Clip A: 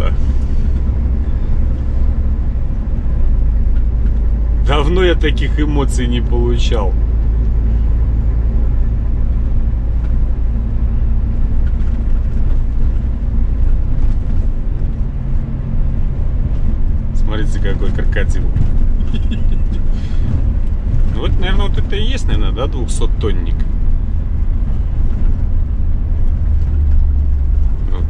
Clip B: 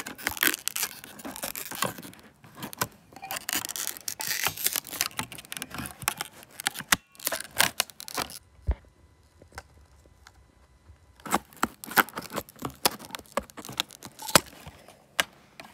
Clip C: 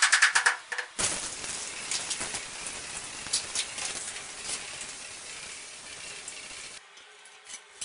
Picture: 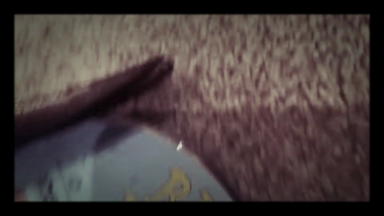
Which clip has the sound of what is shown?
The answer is B